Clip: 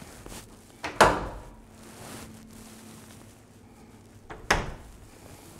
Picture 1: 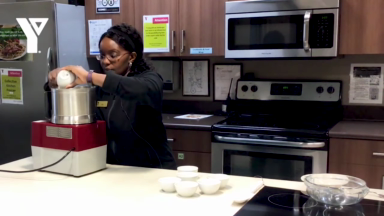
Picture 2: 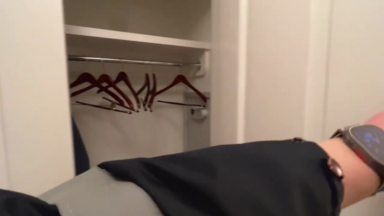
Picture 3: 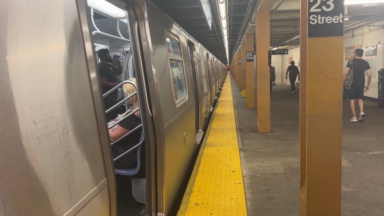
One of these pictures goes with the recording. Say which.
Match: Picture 2